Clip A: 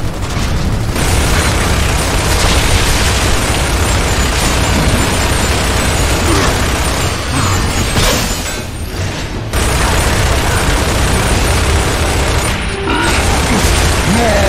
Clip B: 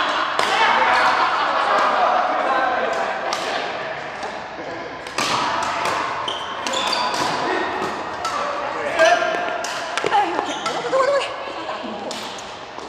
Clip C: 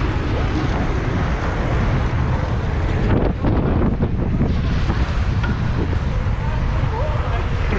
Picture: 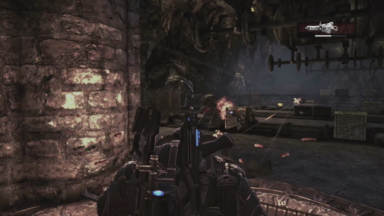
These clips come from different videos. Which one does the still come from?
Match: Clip A